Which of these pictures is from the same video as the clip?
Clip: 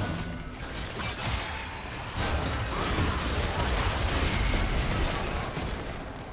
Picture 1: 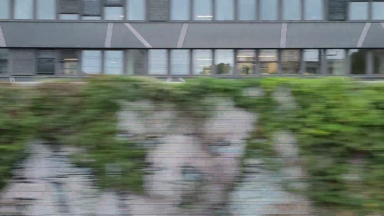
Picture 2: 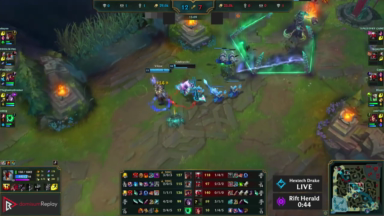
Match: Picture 2